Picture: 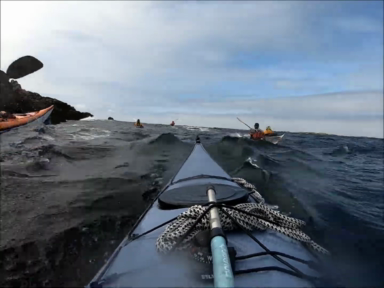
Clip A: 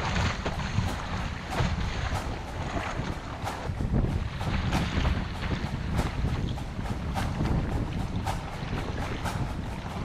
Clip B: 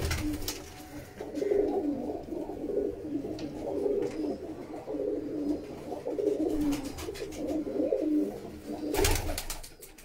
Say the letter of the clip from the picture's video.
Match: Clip A